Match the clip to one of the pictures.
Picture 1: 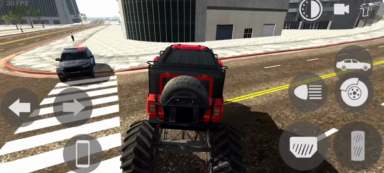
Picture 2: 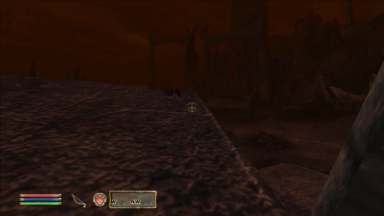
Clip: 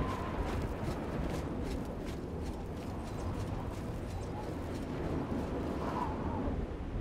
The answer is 2